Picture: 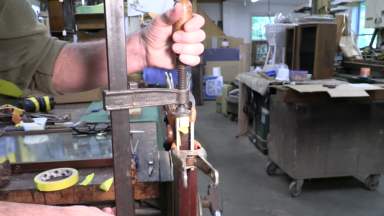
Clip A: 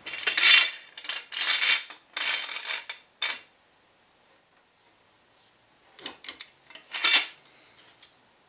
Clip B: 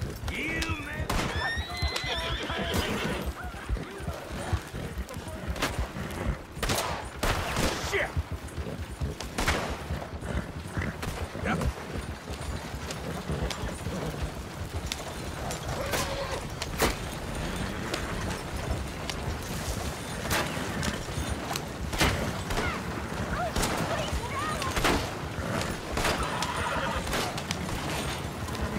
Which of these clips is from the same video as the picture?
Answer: A